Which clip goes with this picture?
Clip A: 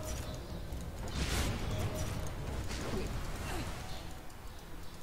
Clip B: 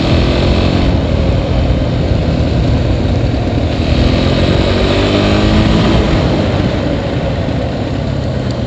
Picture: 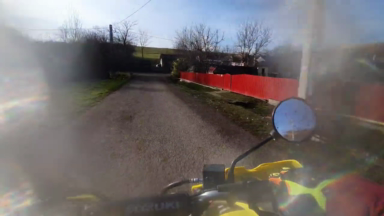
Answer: B